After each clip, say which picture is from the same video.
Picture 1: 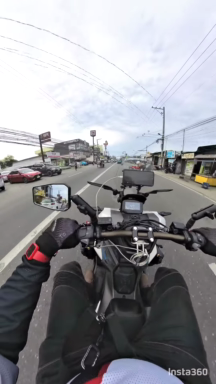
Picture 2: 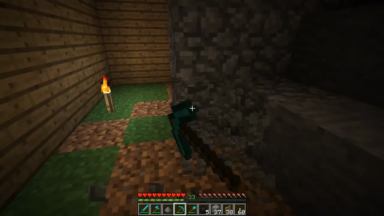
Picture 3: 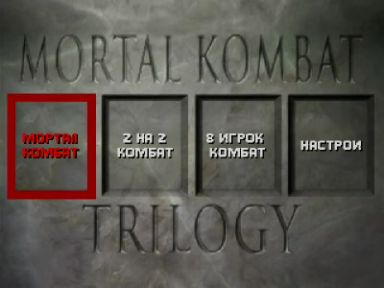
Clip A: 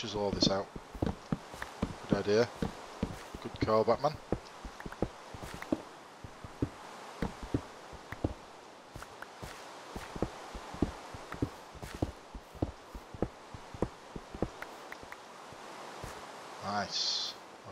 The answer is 2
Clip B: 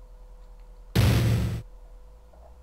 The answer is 3